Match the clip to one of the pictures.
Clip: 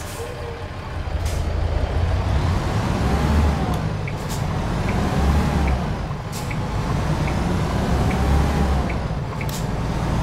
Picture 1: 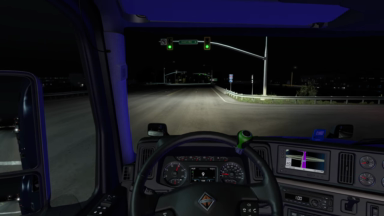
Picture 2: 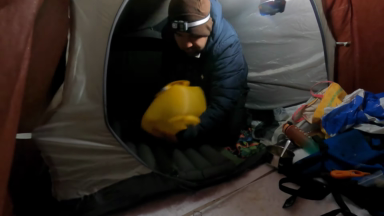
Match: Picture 1